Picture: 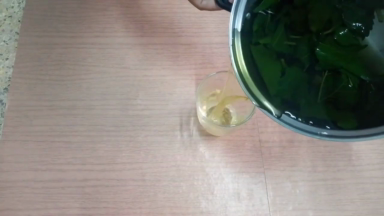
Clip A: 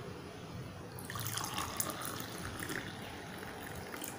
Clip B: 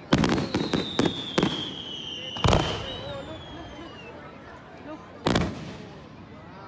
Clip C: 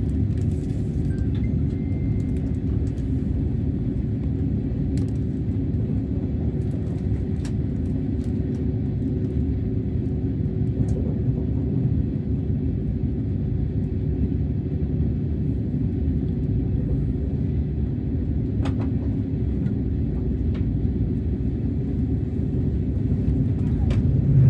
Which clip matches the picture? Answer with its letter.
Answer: A